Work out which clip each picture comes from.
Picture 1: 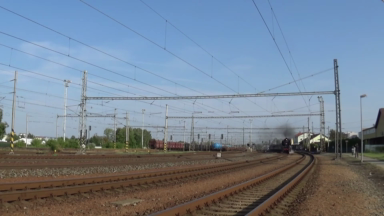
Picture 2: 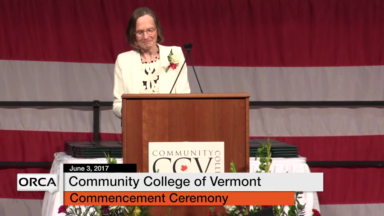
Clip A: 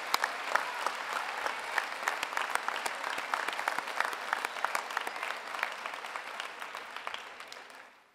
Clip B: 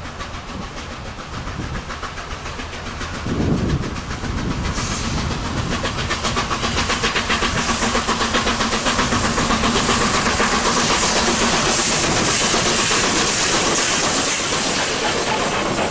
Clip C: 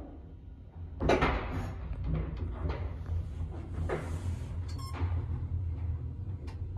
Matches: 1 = B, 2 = A